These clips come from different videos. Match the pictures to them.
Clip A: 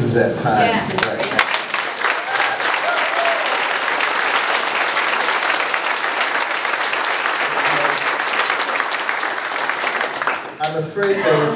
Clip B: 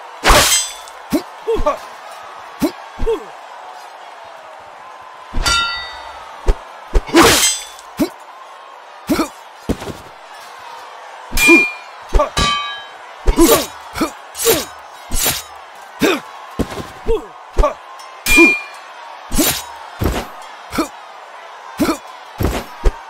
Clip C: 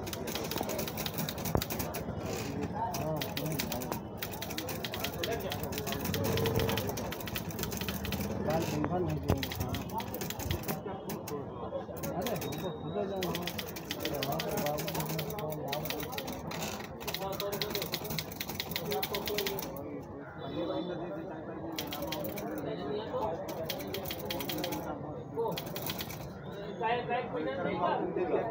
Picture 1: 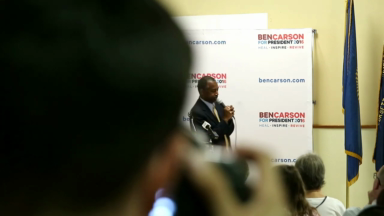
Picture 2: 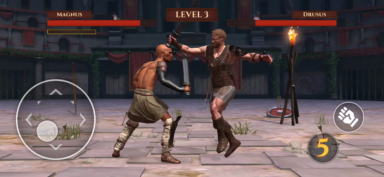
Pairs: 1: A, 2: B